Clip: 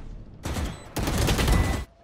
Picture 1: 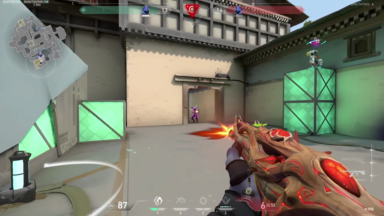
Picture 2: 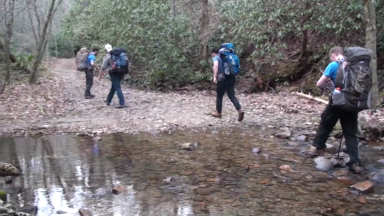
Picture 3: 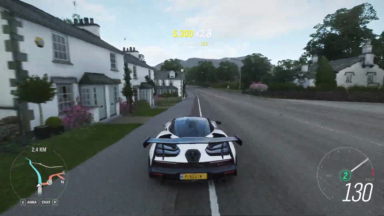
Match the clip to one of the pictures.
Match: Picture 1